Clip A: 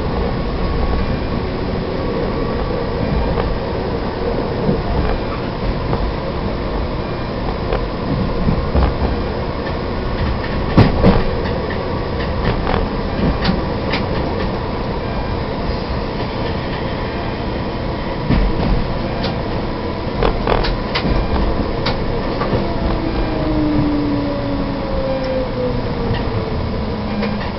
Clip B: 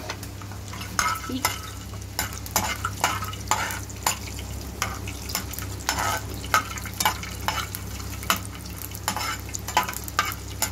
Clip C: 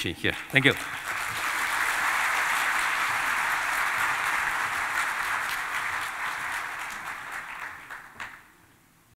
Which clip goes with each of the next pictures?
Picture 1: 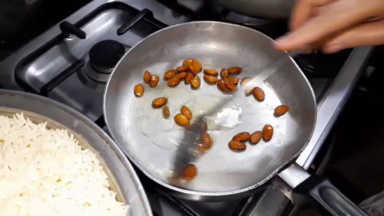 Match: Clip B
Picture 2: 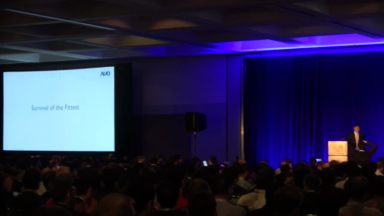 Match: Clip C